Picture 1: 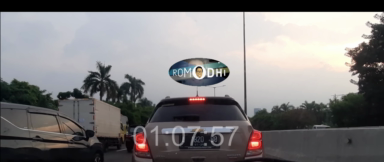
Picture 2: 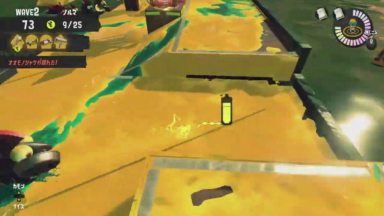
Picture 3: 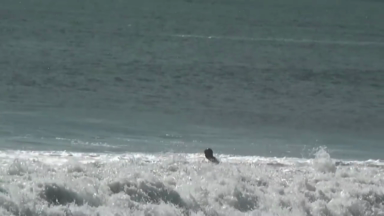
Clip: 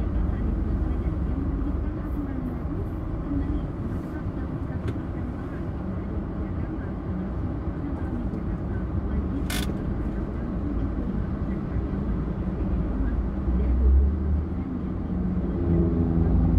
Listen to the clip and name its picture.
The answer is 1